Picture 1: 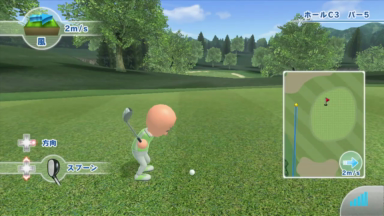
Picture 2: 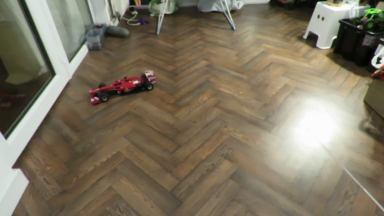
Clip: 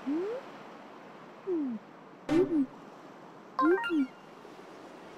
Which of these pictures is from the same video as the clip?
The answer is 1